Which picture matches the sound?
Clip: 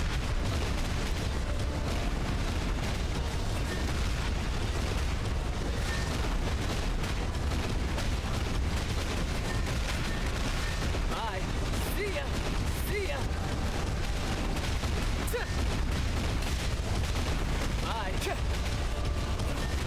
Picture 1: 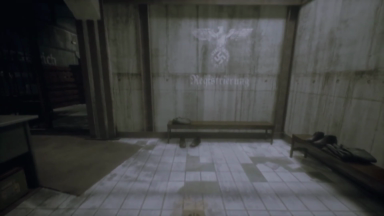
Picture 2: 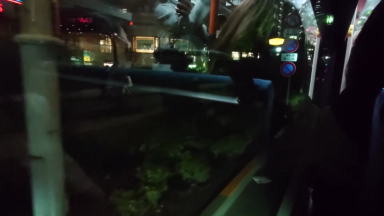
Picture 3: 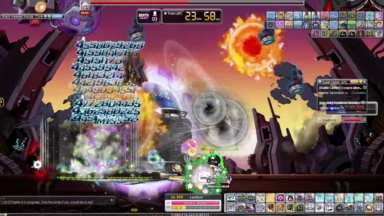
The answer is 3